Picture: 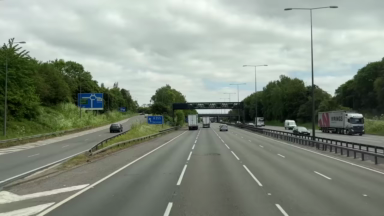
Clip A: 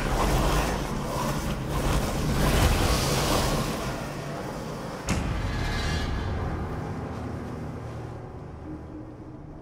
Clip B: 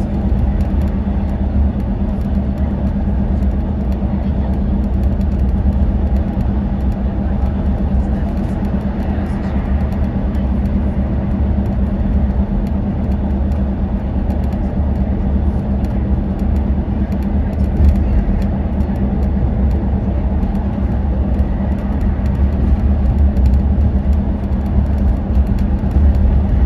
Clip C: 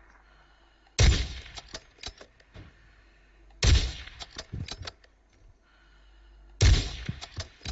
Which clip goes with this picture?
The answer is B